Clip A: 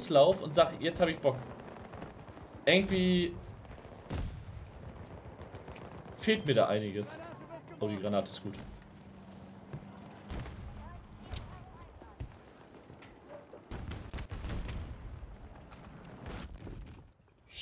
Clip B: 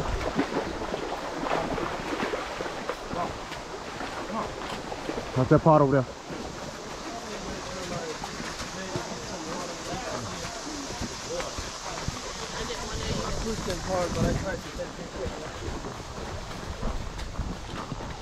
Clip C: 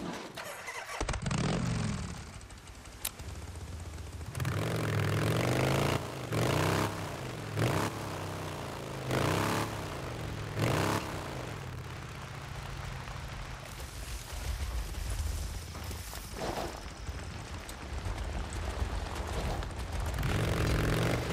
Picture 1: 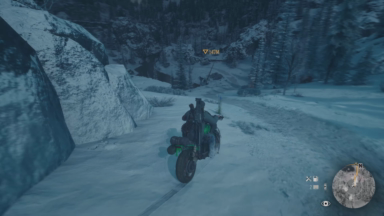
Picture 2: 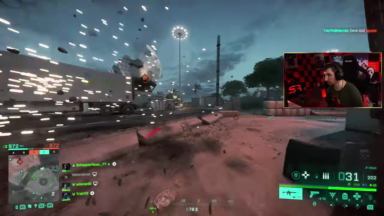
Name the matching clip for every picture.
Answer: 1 C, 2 A